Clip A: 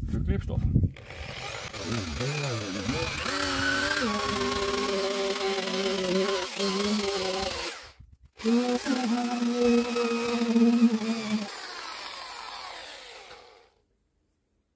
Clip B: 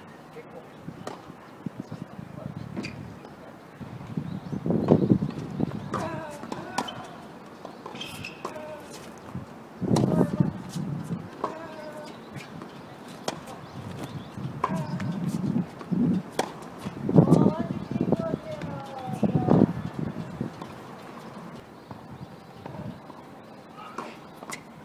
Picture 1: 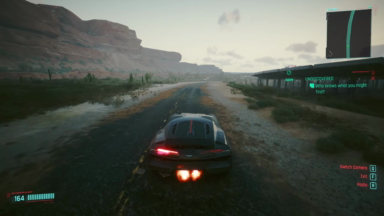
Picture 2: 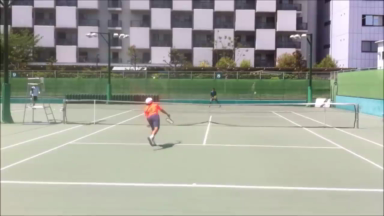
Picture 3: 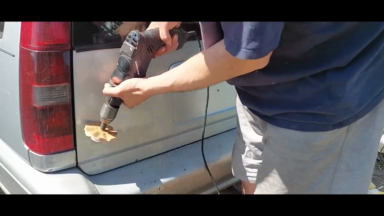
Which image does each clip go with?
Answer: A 3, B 2